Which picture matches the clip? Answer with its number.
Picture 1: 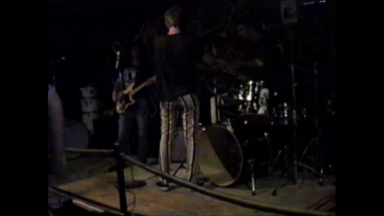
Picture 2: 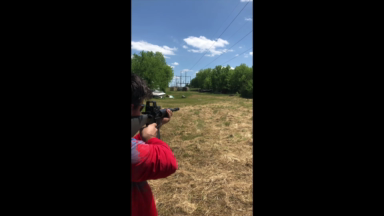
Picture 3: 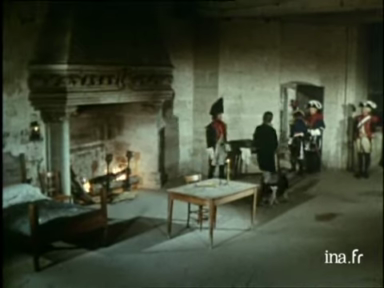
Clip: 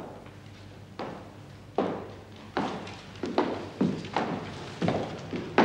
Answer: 3